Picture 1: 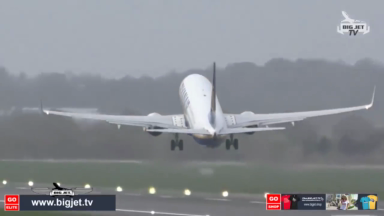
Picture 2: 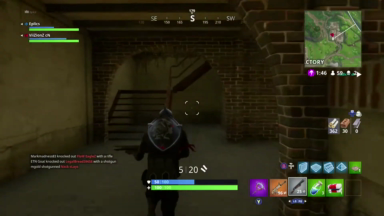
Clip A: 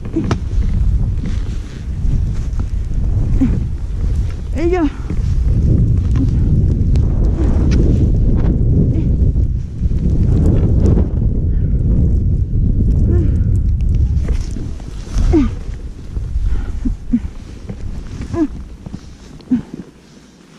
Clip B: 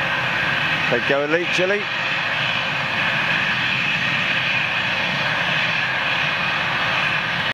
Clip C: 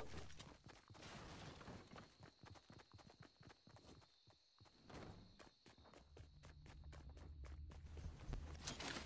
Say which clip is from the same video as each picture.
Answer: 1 B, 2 C